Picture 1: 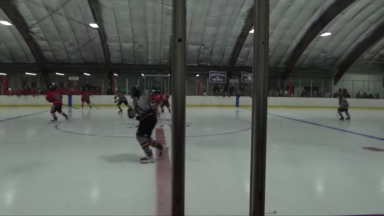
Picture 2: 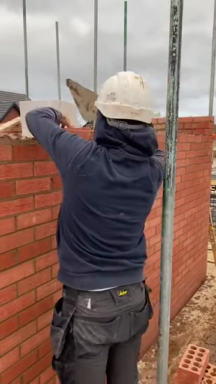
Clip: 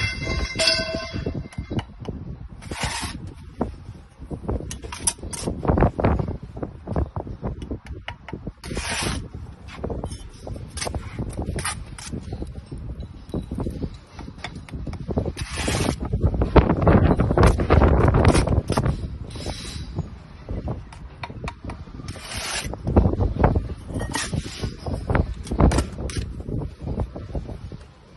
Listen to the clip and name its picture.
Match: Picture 2